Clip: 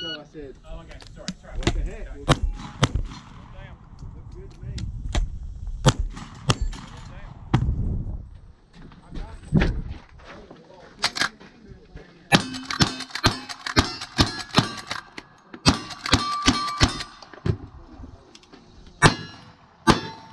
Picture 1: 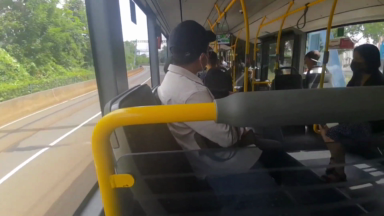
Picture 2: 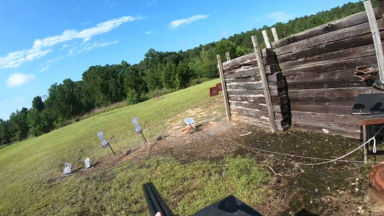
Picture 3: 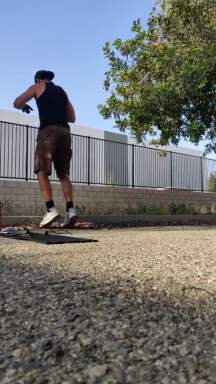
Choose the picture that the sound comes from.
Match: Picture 2